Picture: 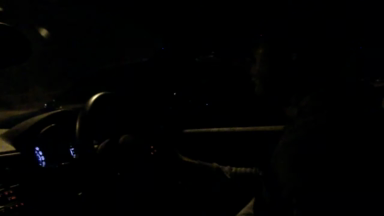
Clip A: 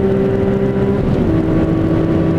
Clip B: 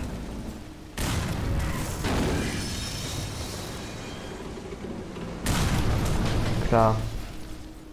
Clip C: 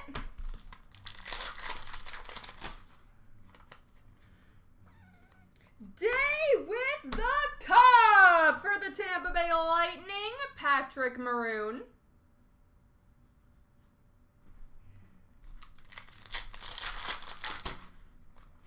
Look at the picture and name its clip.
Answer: A